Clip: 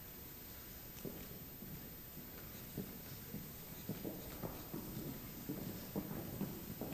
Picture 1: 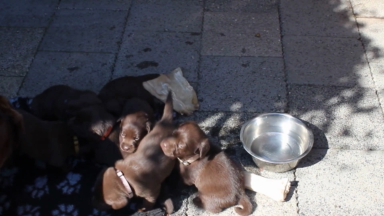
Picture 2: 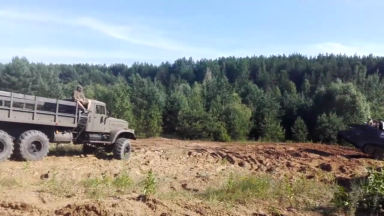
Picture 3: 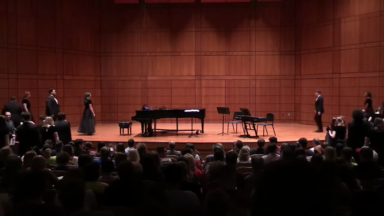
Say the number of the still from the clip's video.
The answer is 3